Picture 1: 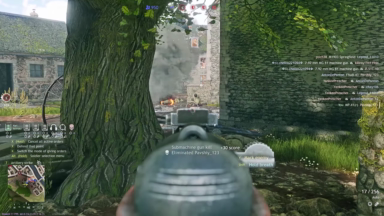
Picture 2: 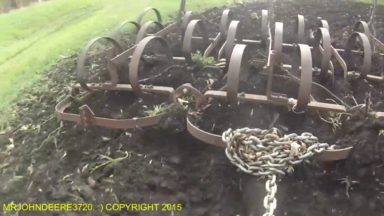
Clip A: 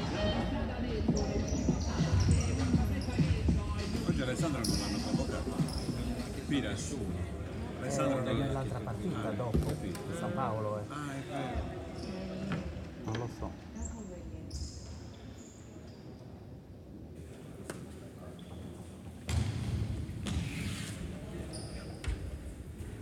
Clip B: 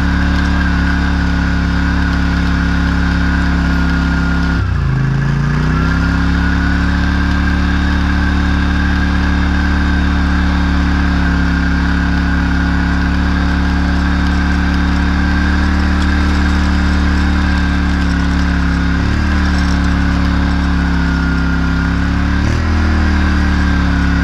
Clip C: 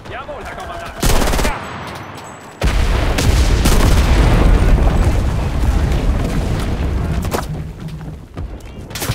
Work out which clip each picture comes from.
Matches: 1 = C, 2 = B